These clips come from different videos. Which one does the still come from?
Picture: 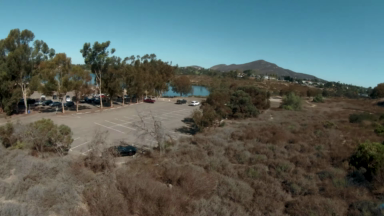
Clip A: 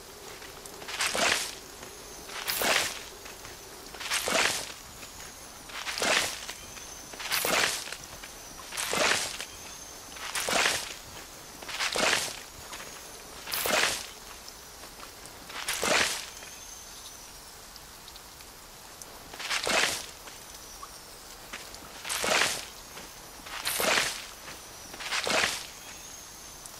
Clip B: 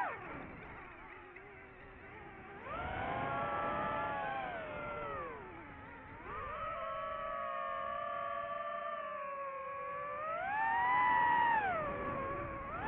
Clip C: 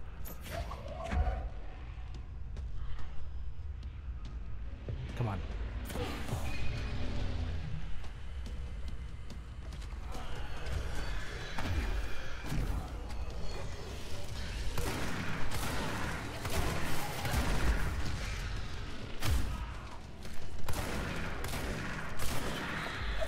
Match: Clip B